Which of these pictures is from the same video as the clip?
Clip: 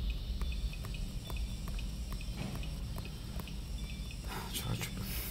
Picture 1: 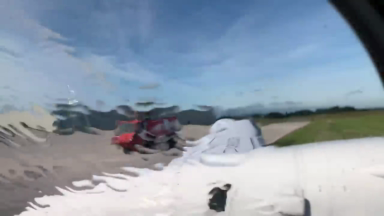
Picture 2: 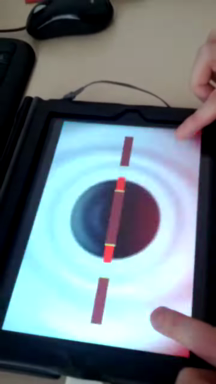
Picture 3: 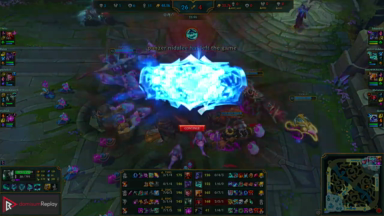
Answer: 2